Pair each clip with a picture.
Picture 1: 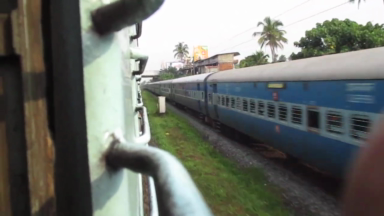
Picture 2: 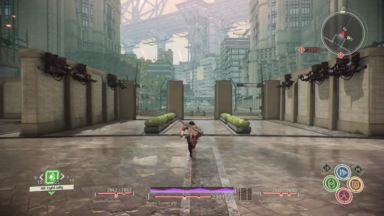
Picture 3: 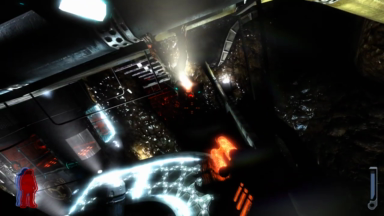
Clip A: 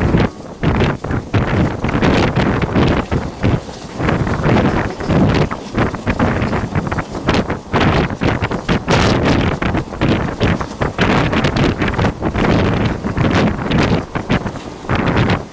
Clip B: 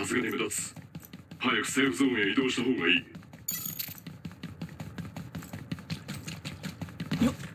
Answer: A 1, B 2